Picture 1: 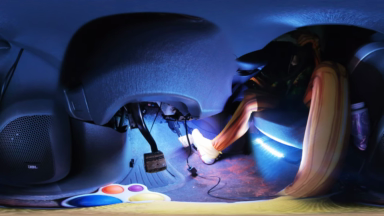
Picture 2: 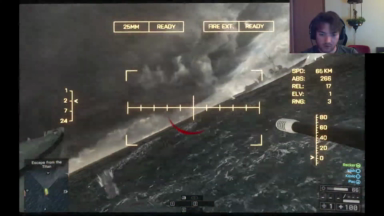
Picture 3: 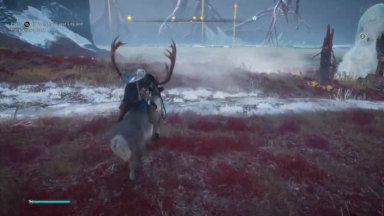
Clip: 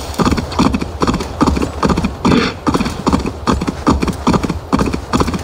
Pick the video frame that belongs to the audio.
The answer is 3